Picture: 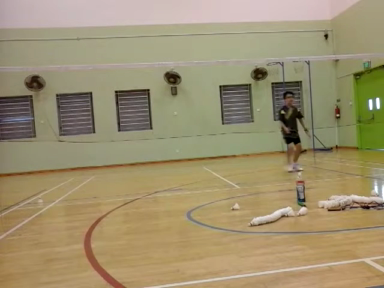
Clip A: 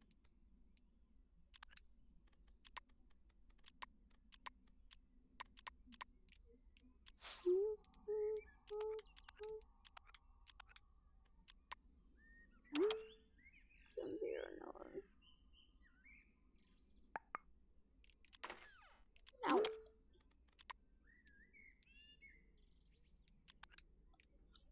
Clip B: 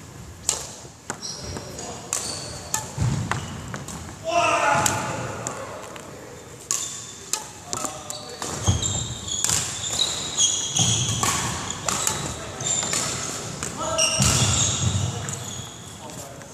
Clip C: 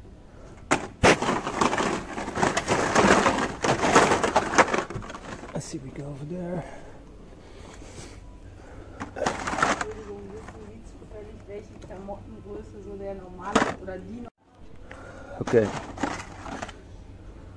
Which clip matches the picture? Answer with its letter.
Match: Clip B